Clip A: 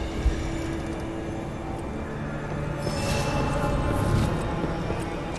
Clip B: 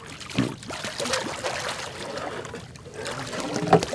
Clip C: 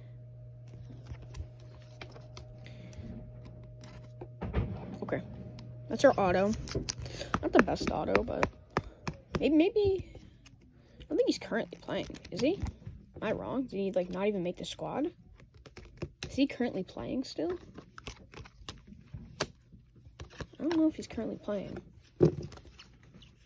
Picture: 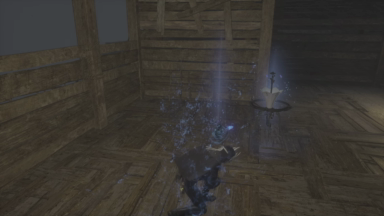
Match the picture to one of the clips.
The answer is A